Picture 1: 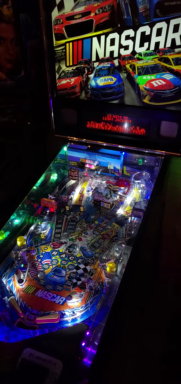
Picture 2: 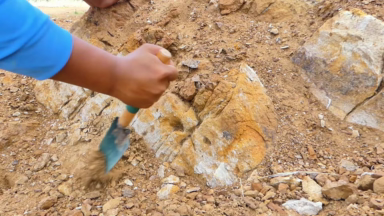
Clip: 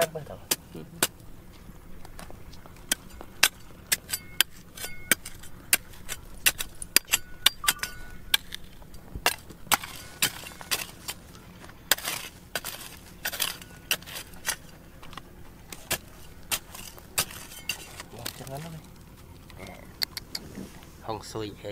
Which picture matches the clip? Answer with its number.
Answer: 2